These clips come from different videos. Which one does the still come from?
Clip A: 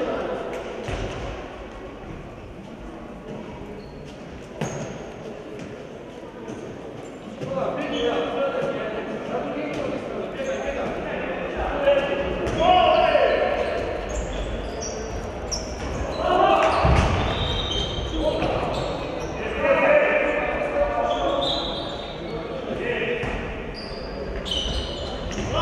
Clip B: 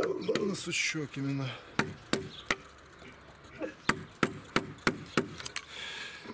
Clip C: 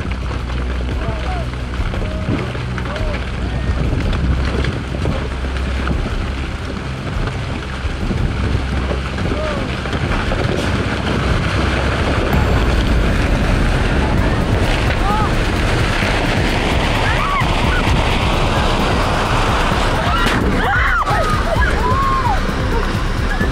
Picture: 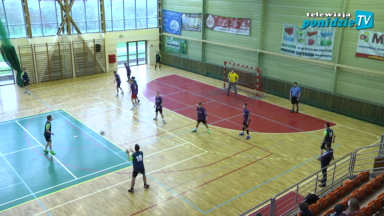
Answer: A